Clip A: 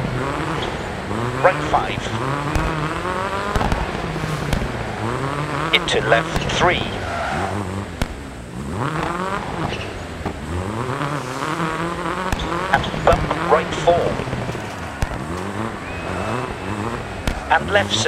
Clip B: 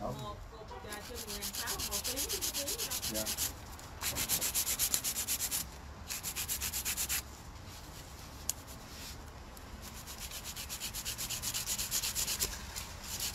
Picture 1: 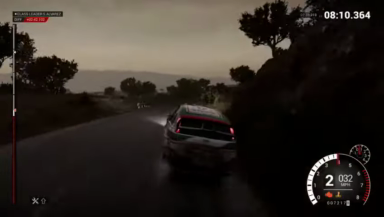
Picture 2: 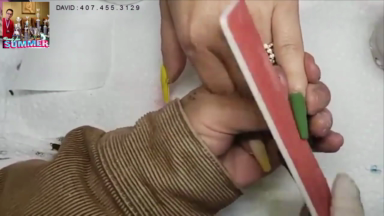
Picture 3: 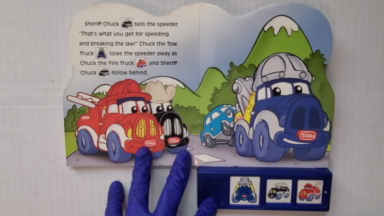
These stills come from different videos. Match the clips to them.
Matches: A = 1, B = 2